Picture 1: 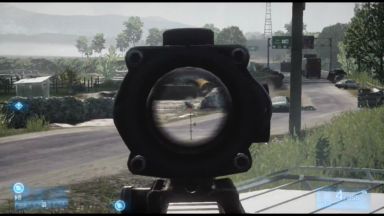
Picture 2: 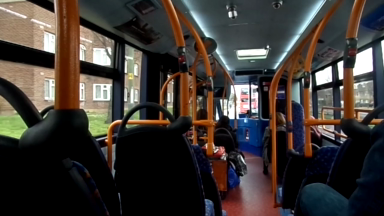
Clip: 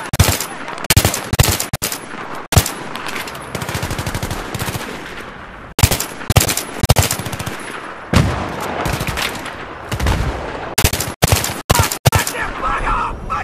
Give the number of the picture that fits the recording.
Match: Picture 1